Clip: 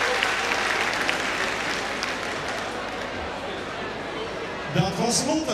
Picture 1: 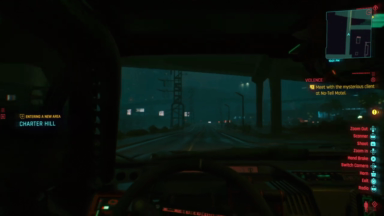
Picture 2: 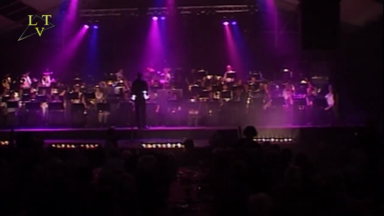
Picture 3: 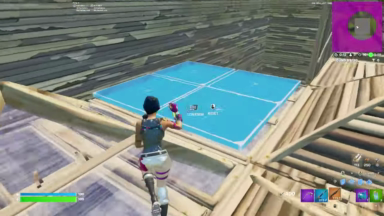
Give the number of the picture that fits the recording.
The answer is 2